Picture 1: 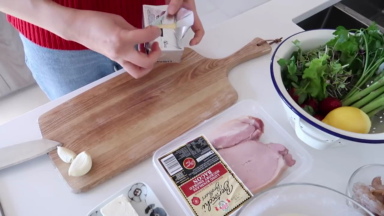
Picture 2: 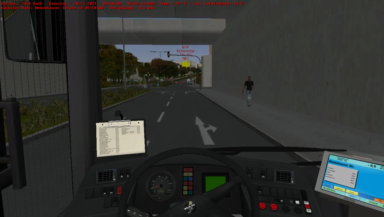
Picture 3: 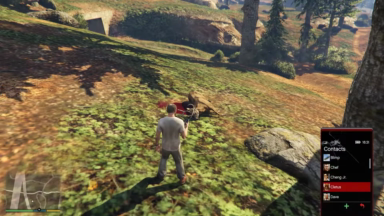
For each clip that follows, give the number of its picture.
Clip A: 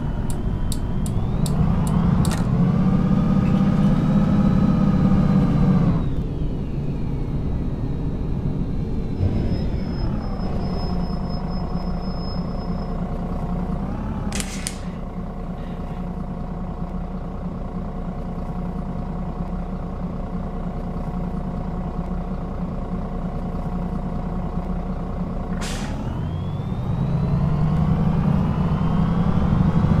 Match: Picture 2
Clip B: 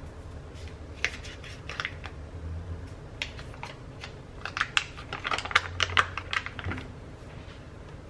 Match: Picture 1